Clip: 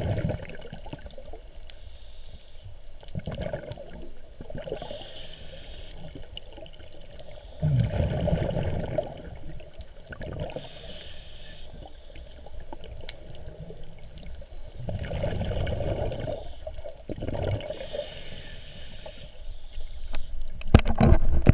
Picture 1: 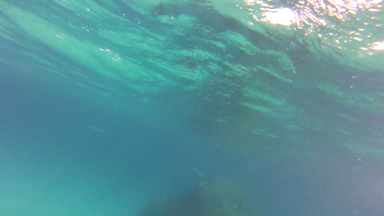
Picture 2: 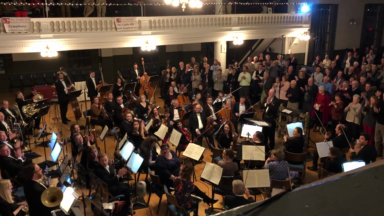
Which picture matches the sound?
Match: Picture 1